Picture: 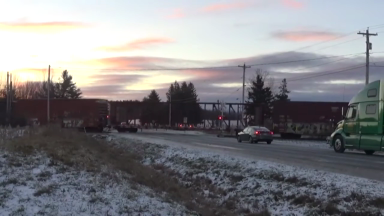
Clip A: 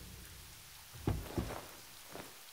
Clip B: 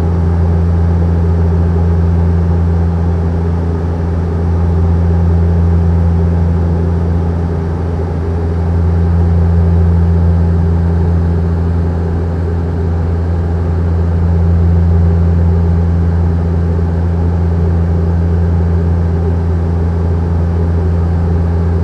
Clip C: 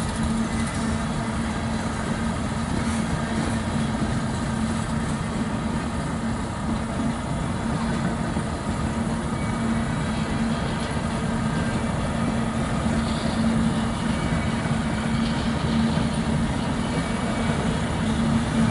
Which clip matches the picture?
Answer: C